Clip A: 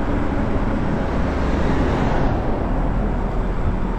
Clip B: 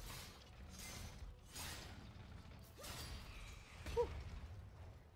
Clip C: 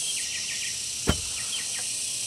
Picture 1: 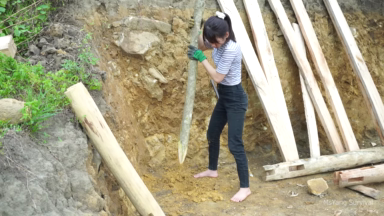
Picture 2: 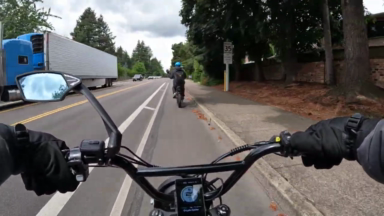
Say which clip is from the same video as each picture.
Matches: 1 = C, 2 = A